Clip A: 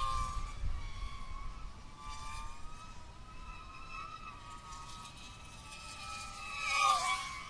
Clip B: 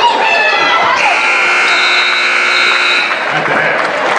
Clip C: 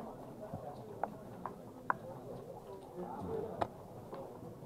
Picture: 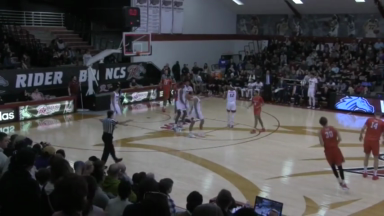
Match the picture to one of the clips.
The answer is B